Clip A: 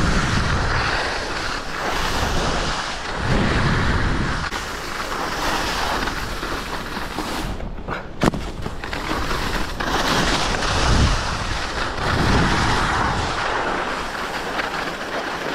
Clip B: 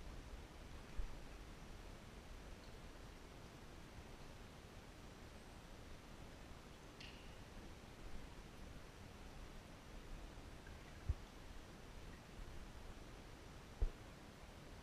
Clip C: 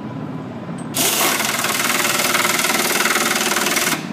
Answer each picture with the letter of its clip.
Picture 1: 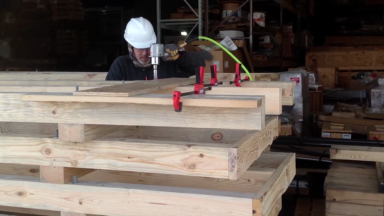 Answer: C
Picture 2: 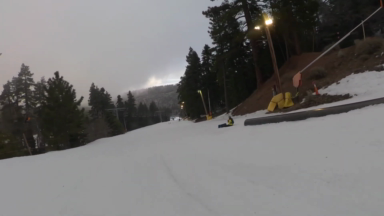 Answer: A